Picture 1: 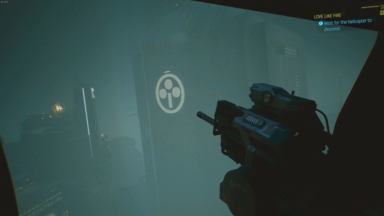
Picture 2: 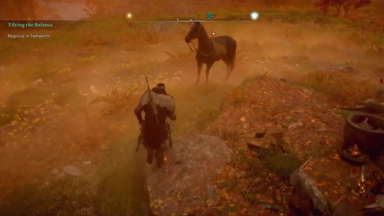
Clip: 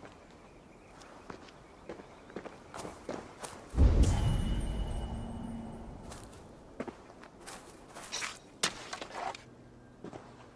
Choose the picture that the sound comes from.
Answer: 2